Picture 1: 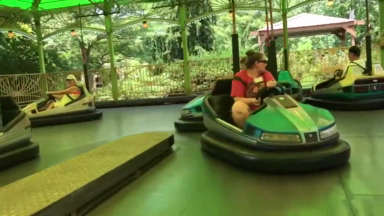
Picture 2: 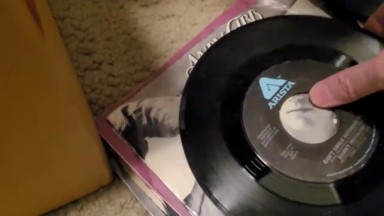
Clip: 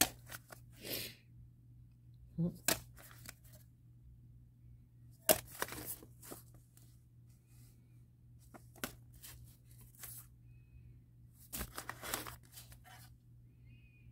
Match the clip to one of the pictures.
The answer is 2